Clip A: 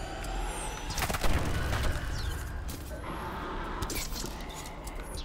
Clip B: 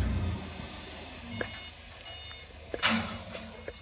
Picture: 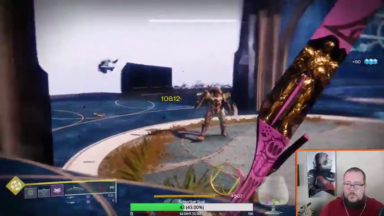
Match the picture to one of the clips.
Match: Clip A